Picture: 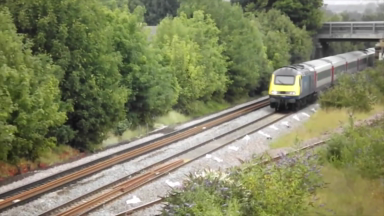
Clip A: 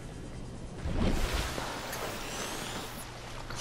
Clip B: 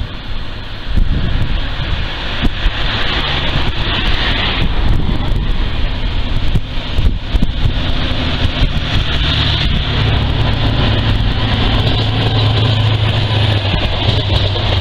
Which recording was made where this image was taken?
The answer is B